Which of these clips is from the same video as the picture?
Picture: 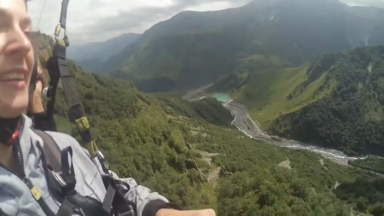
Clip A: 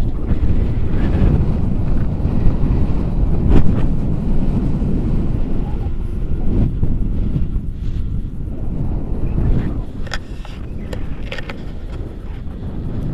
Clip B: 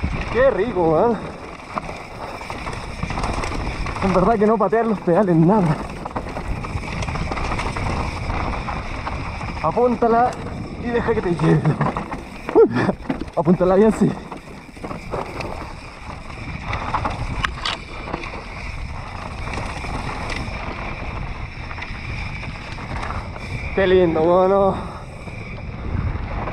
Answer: A